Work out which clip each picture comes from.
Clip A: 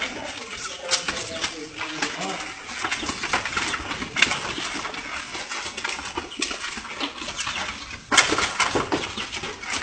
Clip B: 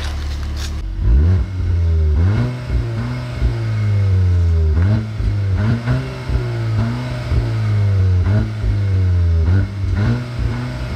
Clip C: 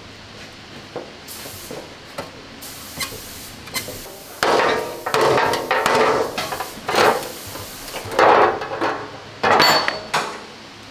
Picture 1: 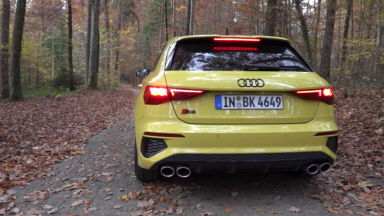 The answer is B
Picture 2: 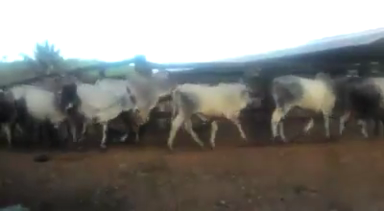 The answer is A